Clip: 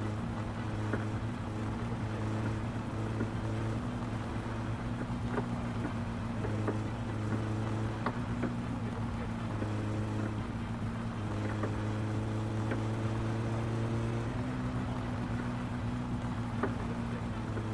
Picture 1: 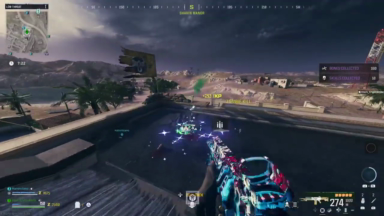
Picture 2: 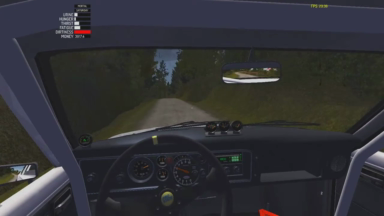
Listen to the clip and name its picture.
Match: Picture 2